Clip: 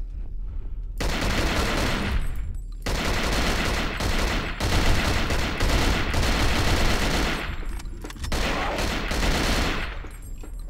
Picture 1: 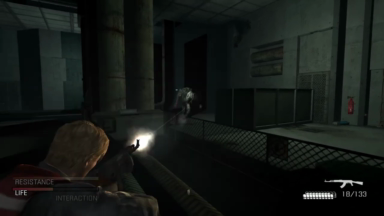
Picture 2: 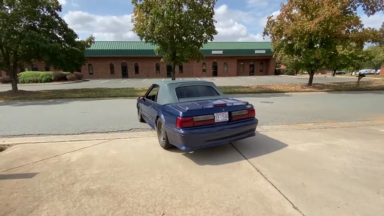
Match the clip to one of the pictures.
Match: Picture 1